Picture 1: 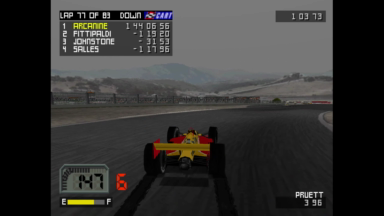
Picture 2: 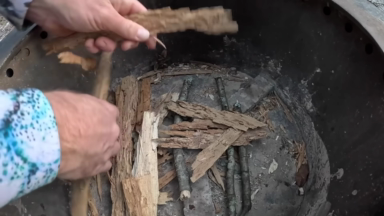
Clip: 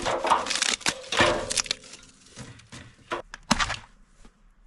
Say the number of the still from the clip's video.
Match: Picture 2